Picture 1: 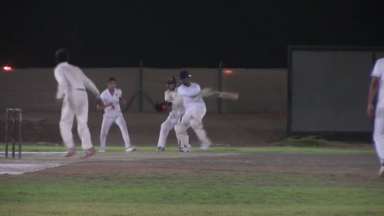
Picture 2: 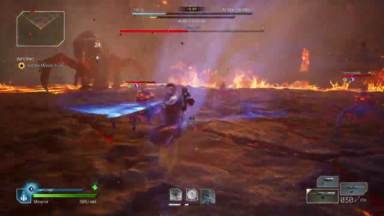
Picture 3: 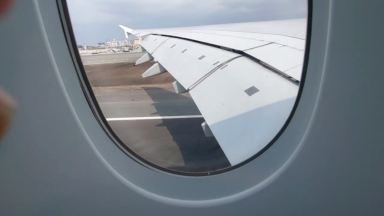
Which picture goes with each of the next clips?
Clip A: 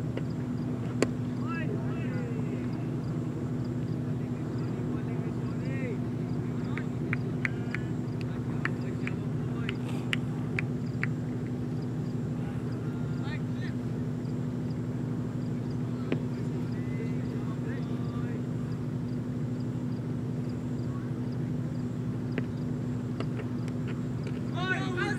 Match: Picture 1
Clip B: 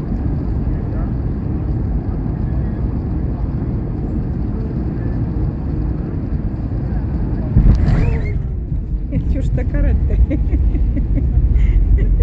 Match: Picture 3